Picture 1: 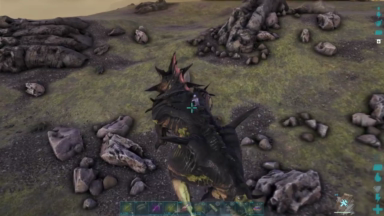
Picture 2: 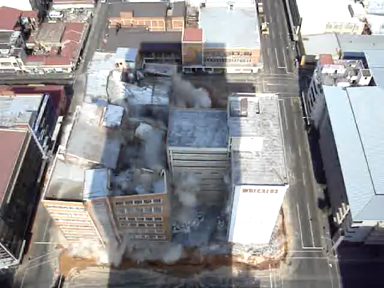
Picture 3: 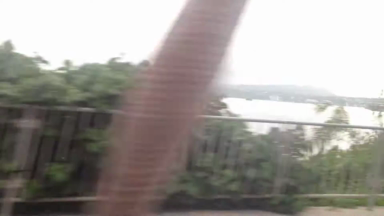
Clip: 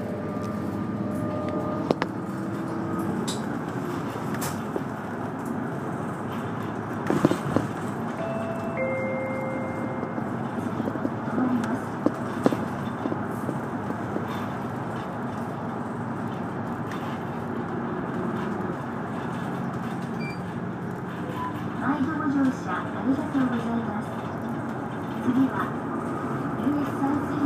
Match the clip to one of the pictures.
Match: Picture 3